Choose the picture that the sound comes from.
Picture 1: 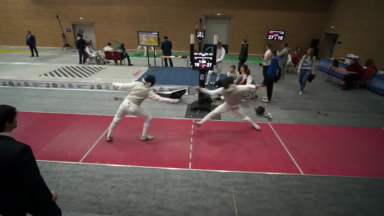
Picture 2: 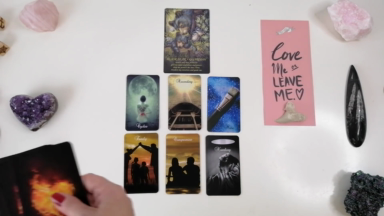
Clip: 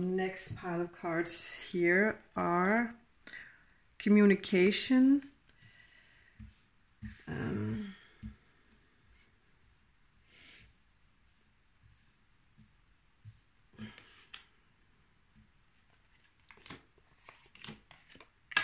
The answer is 2